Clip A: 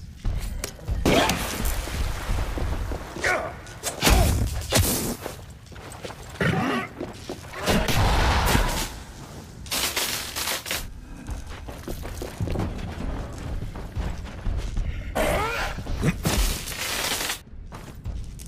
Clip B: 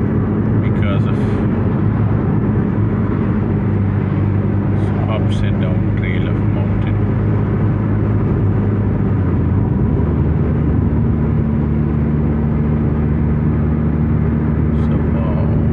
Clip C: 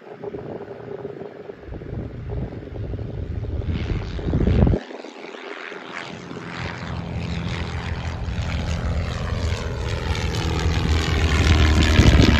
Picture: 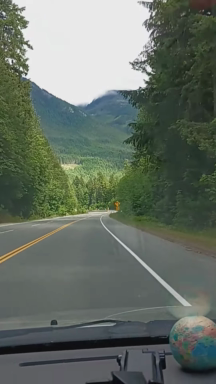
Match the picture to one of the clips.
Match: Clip B